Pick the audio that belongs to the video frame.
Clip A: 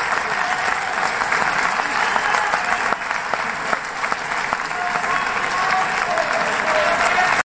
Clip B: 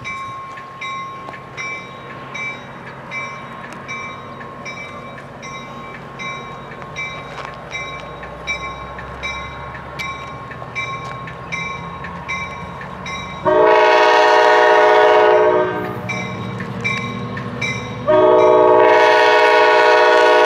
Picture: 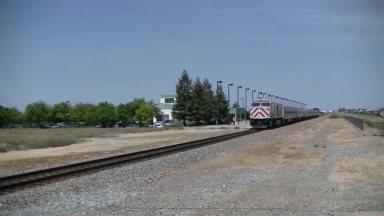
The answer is B